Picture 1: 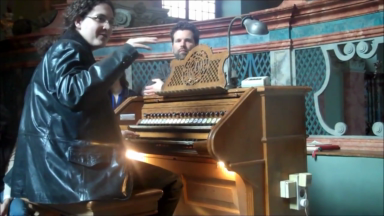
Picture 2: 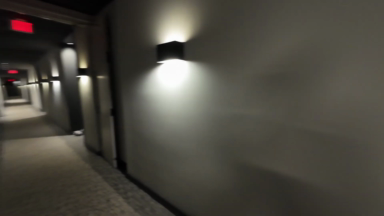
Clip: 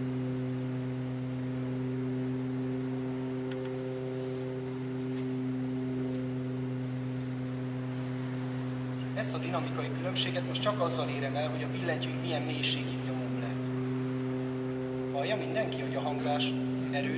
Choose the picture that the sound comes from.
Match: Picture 1